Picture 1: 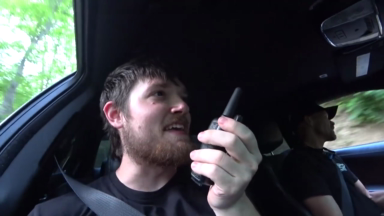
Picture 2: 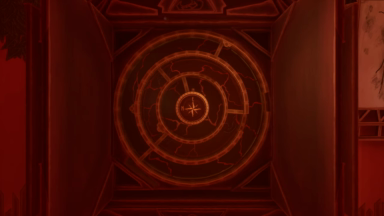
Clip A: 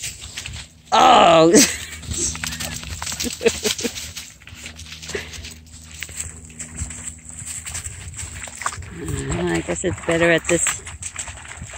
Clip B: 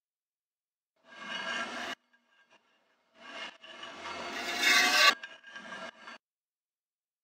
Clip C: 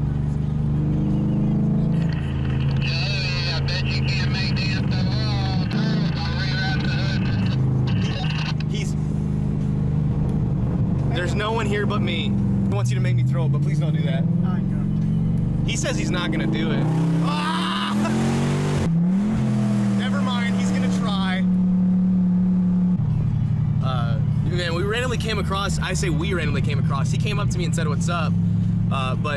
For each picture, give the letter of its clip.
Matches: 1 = C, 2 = B